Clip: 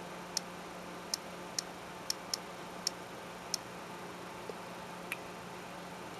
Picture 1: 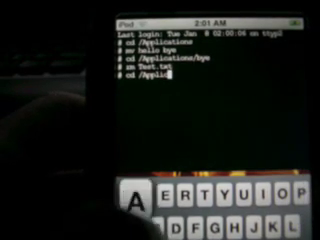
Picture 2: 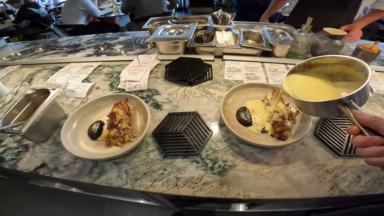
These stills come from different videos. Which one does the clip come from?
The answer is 1